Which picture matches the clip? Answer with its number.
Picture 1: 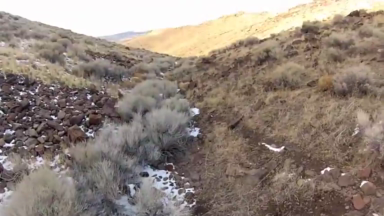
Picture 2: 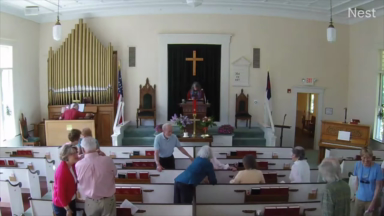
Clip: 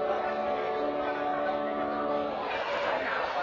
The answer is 2